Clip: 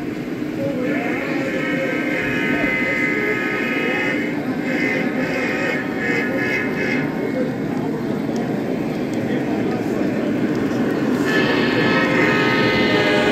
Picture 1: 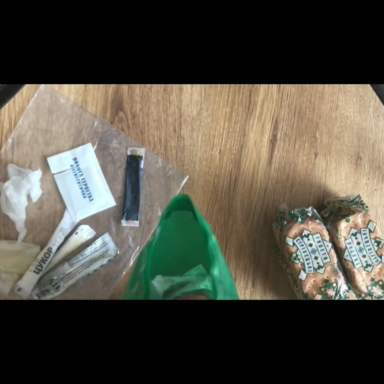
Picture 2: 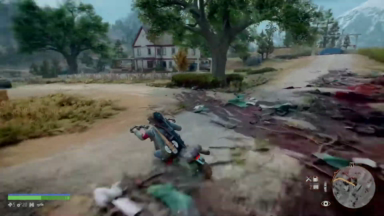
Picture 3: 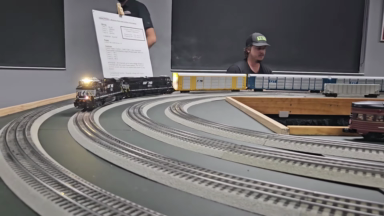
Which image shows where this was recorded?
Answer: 3